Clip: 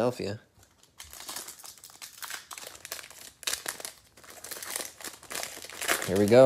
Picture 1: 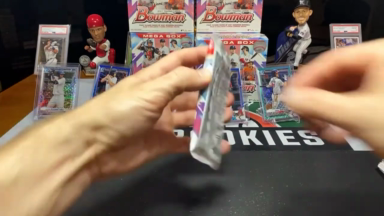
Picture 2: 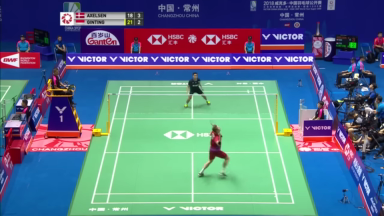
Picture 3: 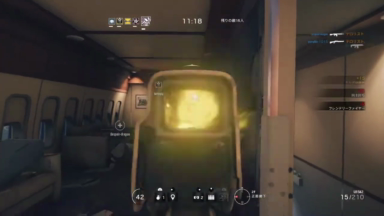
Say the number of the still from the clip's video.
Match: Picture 1